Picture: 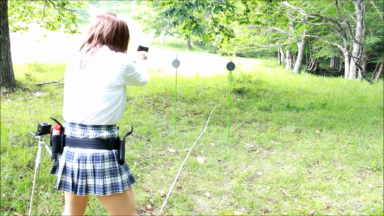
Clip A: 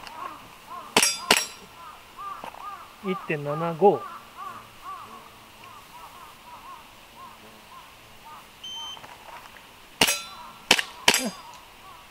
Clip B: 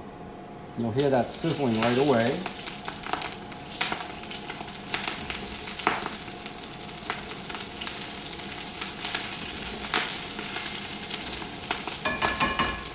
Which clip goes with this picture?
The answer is A